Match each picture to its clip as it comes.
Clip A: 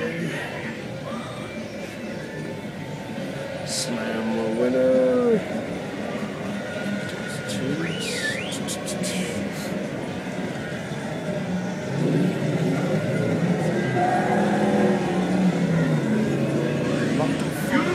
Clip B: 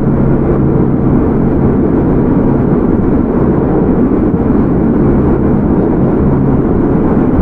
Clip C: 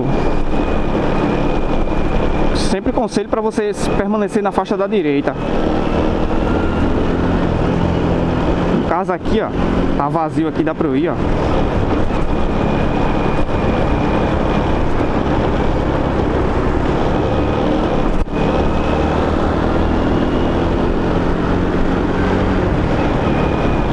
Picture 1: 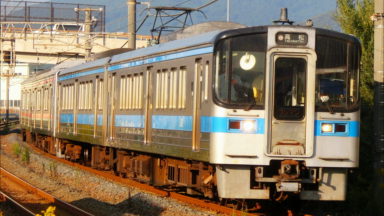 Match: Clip B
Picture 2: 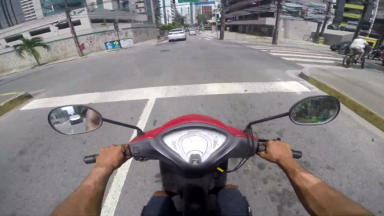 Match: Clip C